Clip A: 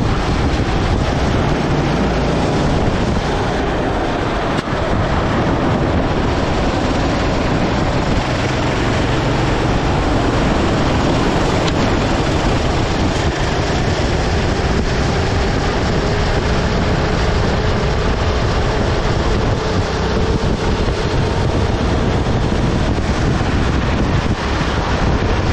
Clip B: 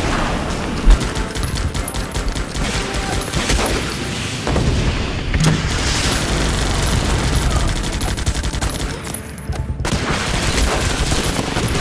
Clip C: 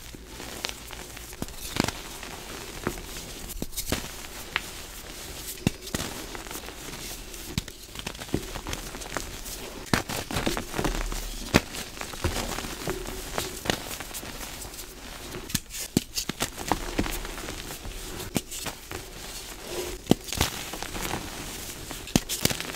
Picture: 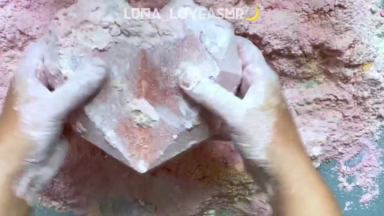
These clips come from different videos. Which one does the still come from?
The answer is C